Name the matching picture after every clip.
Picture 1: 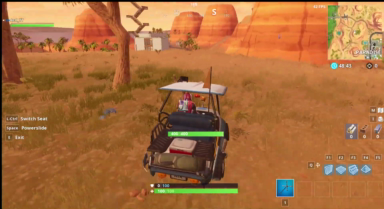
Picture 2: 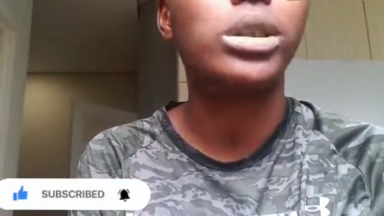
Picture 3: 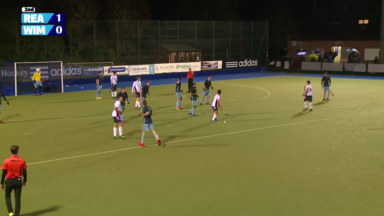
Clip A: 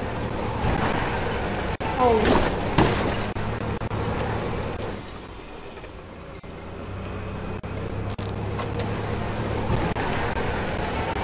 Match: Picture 1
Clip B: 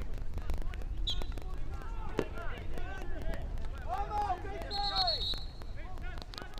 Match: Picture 3